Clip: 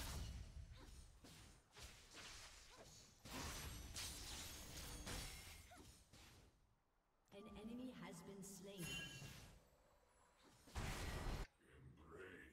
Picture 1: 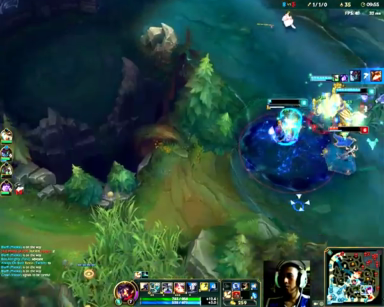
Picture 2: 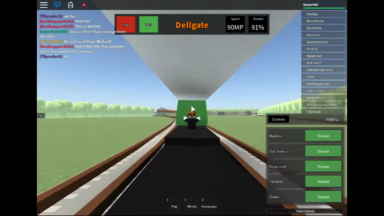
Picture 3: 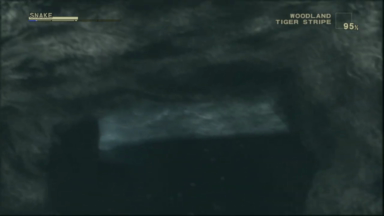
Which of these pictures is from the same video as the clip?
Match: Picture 1